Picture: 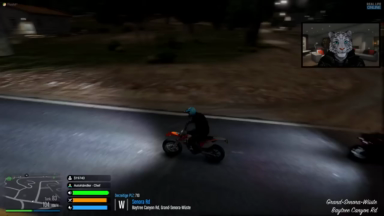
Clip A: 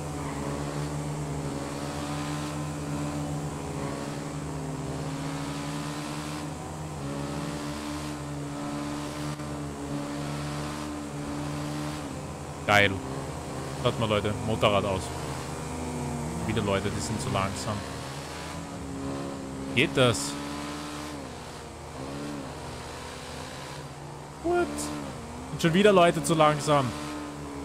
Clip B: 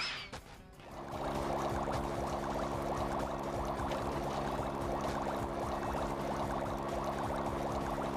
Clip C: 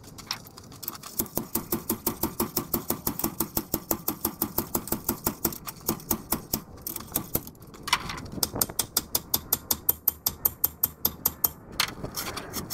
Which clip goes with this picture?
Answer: A